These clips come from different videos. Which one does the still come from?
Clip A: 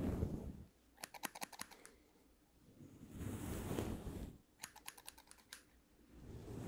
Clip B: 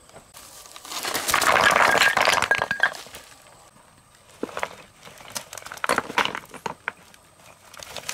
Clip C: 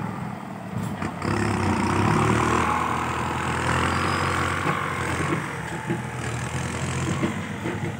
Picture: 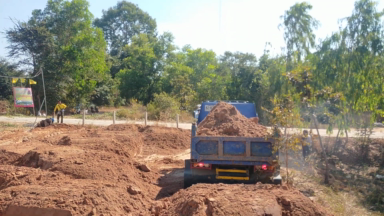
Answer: C